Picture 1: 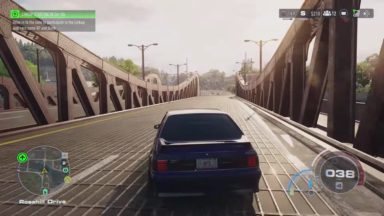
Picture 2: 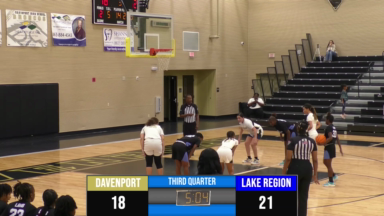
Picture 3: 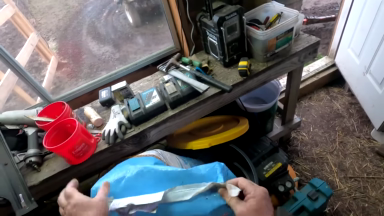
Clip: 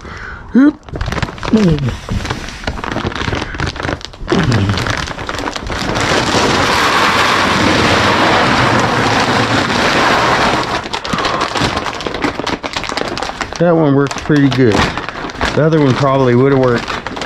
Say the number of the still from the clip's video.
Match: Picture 3